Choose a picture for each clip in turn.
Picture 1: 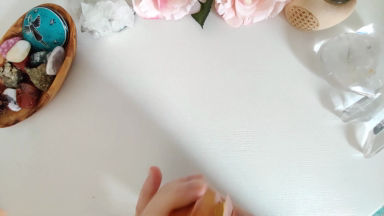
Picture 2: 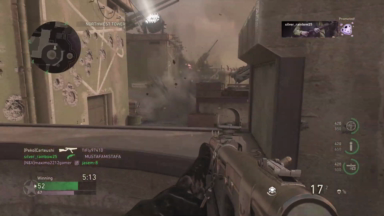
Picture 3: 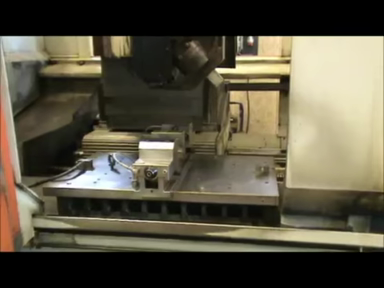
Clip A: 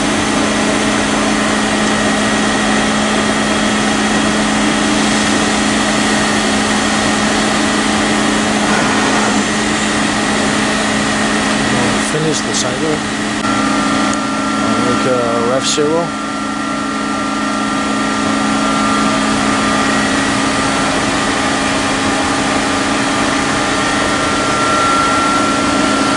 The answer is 3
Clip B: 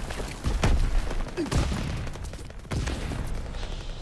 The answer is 2